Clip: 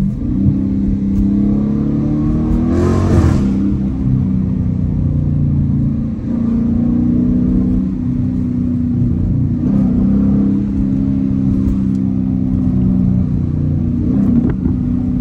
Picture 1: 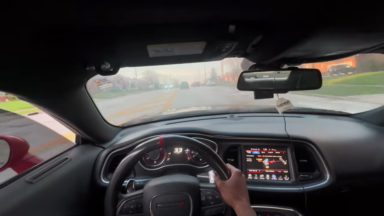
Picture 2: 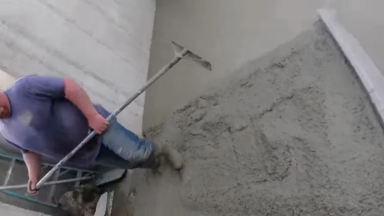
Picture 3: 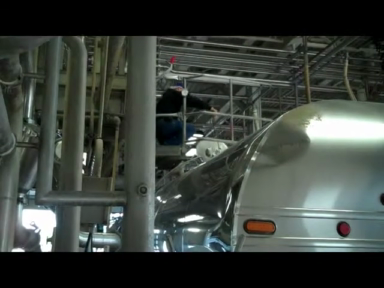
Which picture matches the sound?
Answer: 1